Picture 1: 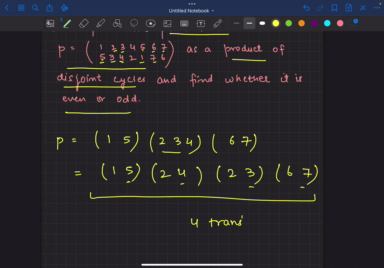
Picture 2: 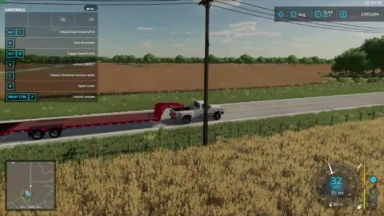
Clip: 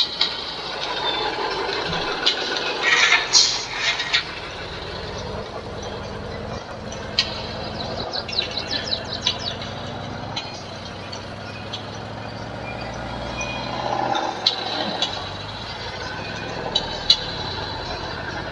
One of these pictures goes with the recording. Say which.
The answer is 2